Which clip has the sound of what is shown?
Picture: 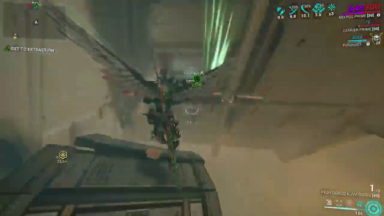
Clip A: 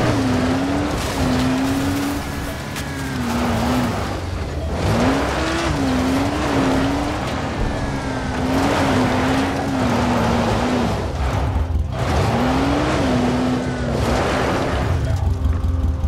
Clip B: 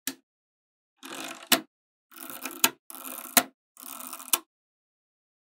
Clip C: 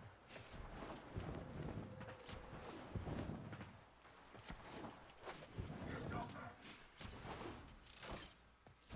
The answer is C